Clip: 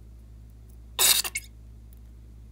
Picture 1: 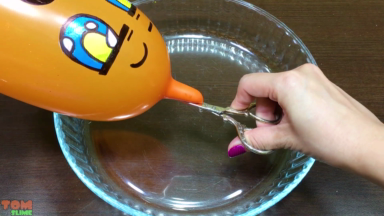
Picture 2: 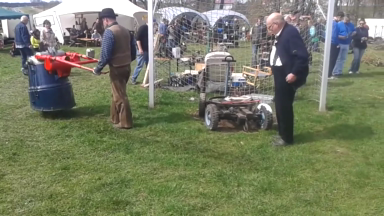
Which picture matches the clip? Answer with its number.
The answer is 1